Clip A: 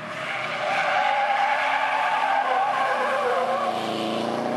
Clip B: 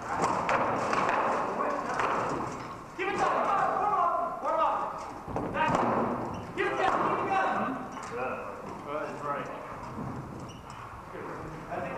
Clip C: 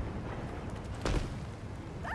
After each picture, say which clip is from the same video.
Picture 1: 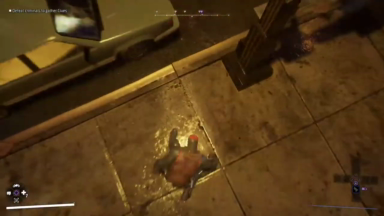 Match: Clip C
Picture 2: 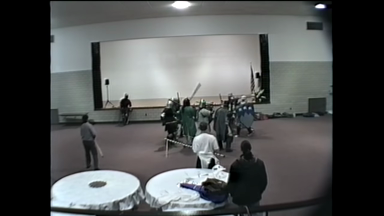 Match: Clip B